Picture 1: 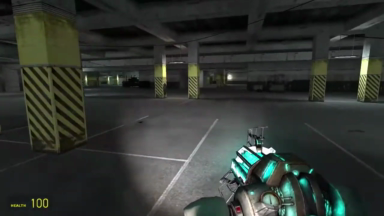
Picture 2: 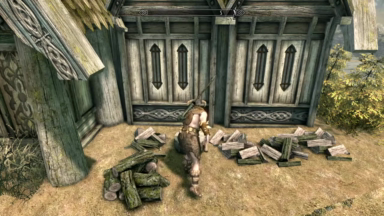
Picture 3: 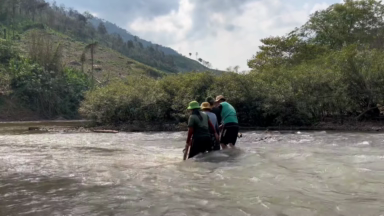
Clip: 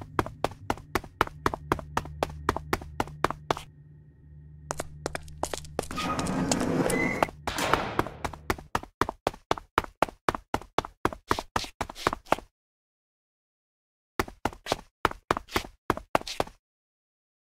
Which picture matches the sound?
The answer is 1